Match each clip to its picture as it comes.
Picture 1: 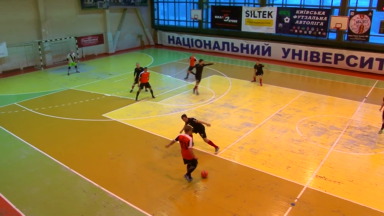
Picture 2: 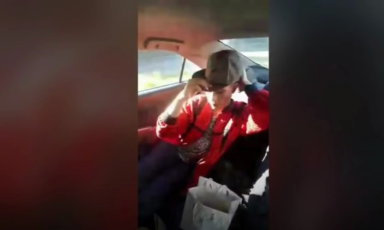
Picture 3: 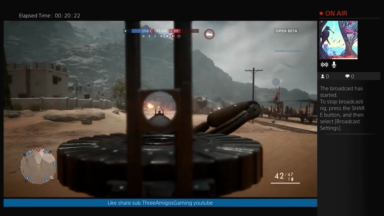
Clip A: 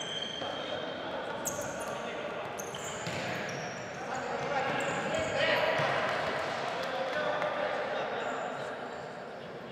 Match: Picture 1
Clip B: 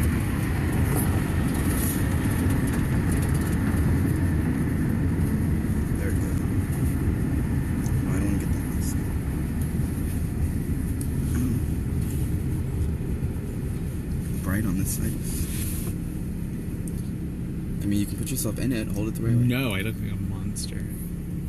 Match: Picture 2